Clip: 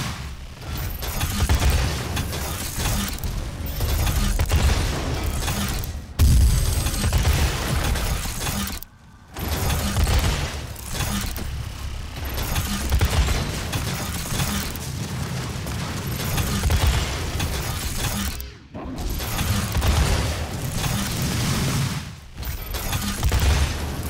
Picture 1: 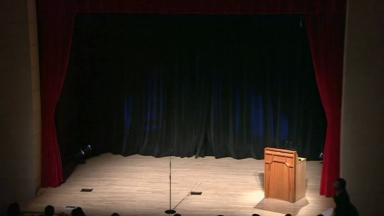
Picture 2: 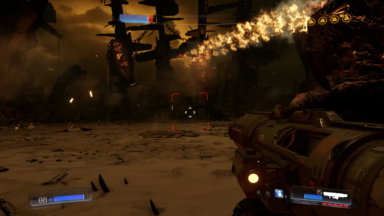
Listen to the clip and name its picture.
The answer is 2